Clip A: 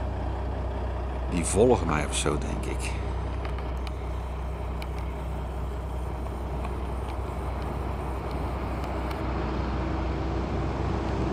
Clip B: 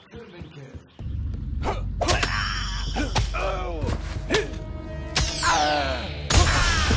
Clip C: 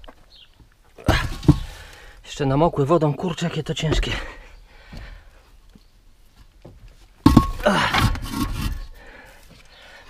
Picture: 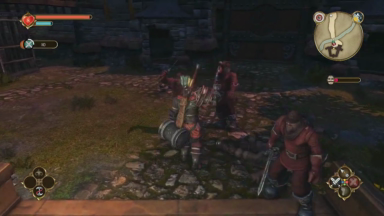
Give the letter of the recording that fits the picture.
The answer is B